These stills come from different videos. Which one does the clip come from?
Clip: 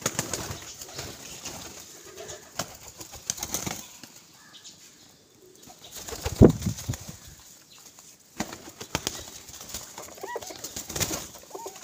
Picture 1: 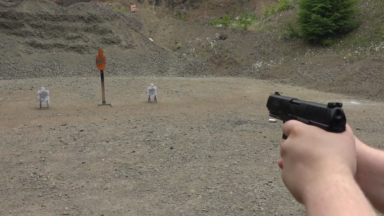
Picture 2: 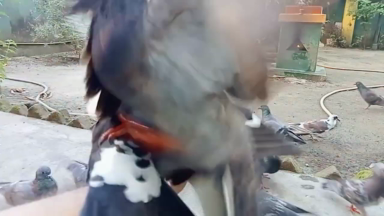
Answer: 2